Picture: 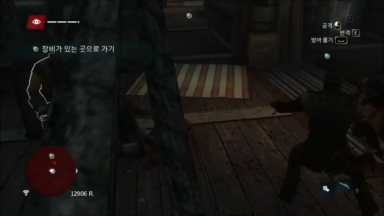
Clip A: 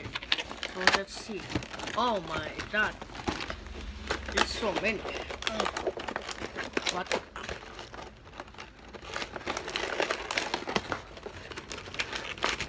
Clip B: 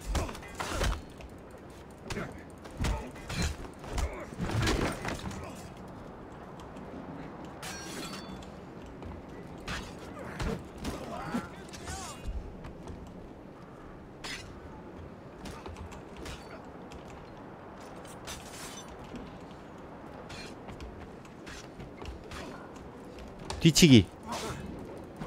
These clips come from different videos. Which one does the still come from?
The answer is B